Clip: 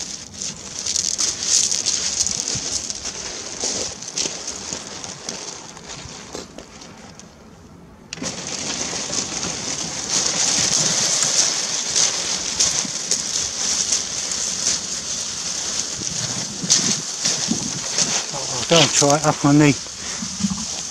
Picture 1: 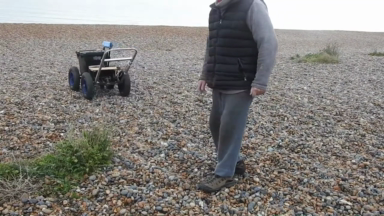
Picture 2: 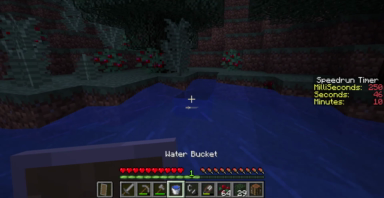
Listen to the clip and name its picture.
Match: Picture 1